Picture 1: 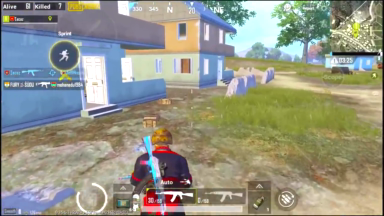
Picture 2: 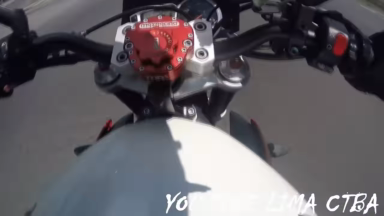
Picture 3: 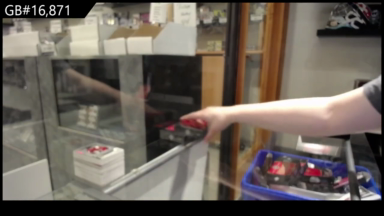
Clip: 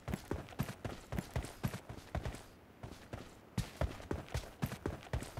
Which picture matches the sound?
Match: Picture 1